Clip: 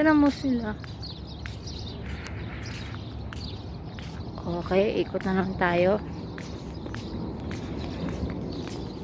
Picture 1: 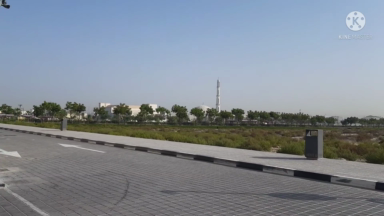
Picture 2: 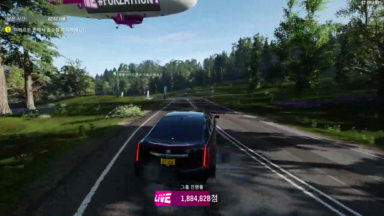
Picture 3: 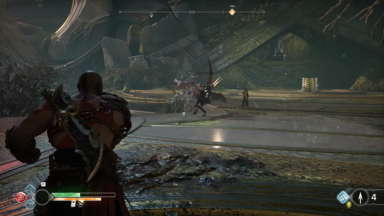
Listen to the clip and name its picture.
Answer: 1